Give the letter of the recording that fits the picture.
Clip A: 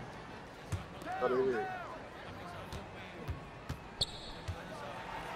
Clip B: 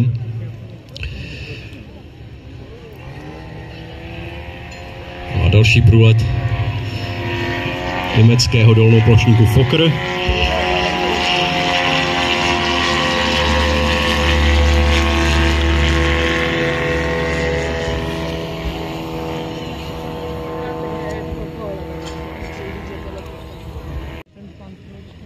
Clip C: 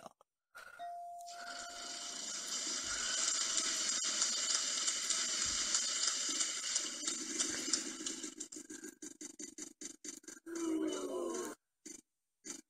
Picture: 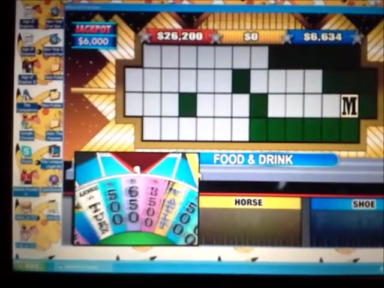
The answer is C